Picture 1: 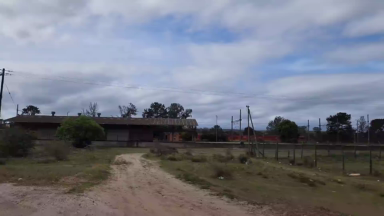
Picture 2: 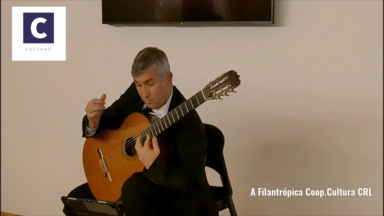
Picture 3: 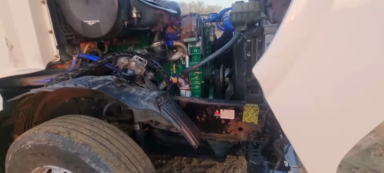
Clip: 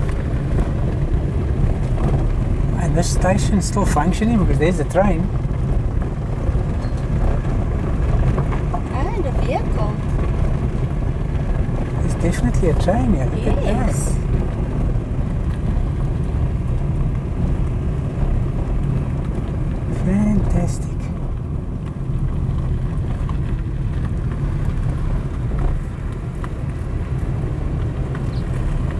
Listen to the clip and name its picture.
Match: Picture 1